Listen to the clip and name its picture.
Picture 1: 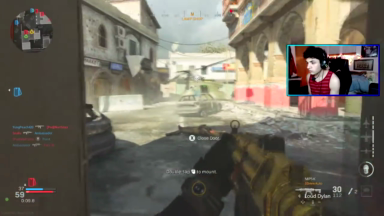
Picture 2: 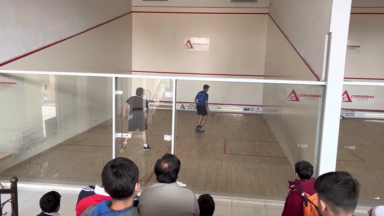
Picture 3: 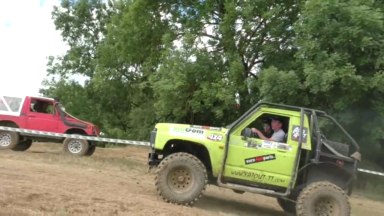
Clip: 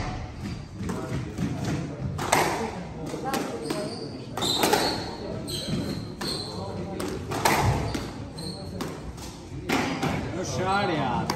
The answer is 2